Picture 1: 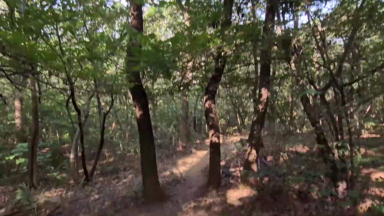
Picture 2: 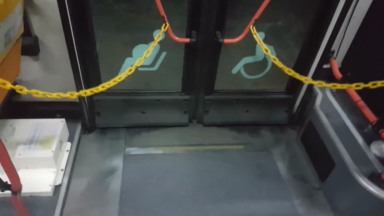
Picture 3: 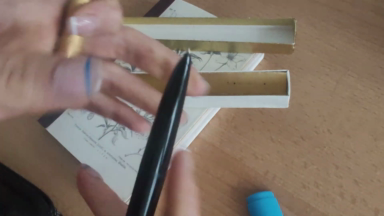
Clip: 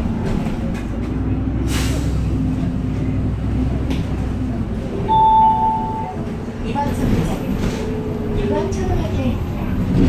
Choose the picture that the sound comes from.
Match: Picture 2